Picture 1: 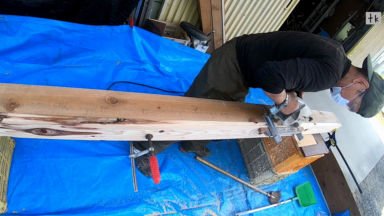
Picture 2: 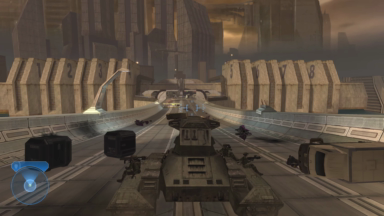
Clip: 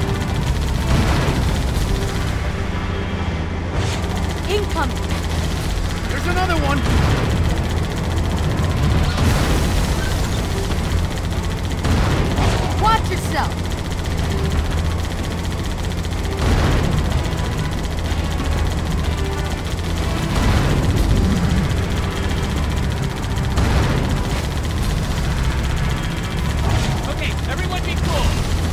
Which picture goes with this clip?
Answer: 2